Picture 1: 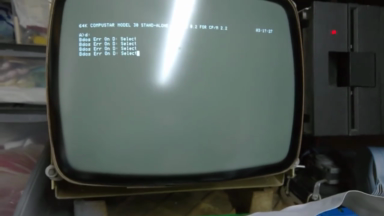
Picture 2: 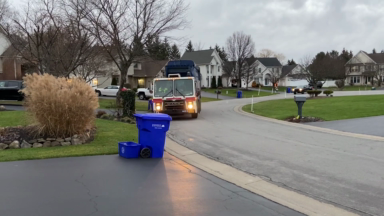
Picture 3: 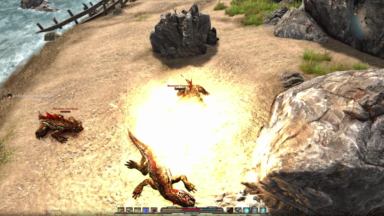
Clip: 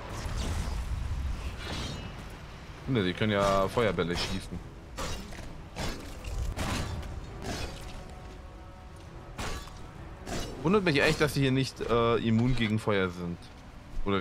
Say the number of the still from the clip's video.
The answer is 3